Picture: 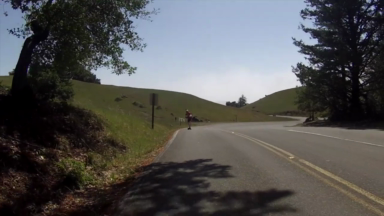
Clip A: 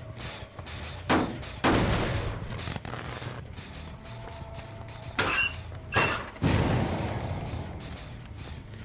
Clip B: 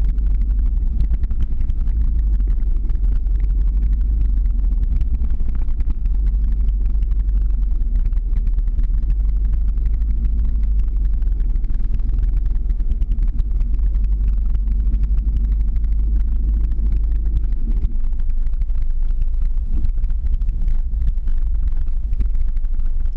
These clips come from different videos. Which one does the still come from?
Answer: B